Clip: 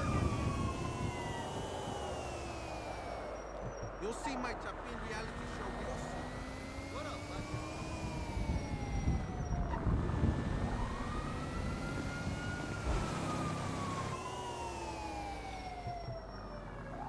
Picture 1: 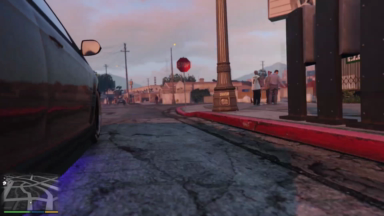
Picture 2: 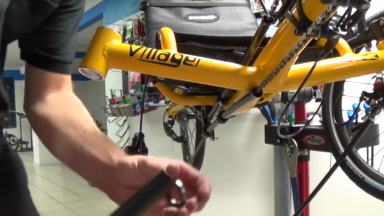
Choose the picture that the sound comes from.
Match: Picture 1